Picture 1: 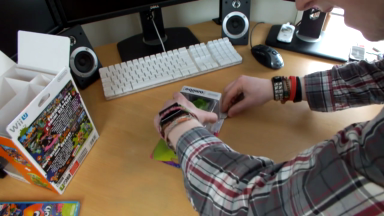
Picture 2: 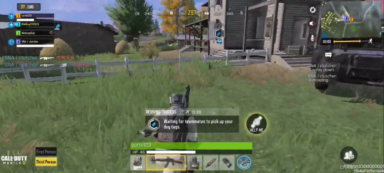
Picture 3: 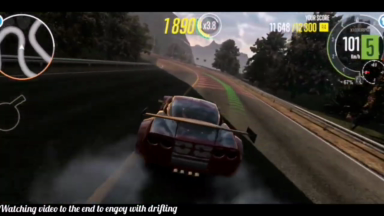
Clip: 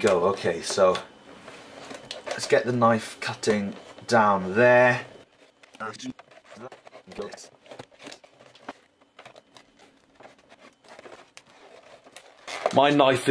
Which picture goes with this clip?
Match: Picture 1